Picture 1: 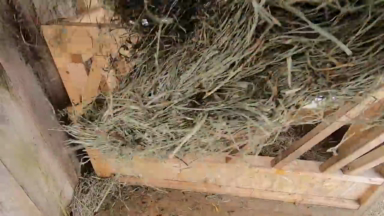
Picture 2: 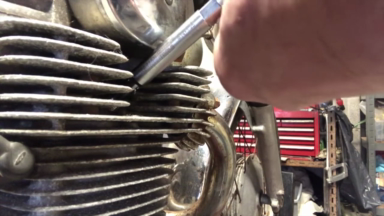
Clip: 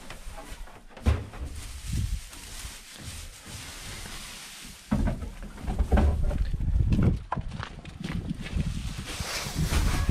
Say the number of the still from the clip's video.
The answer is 1